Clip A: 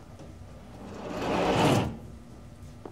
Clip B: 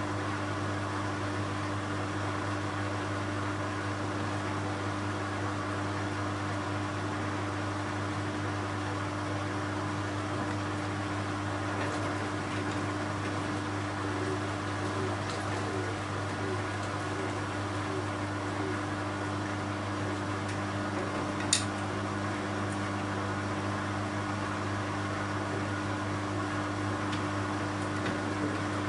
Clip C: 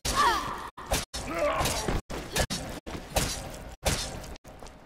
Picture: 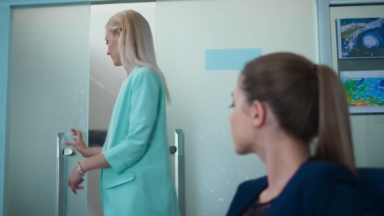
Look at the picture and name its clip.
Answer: A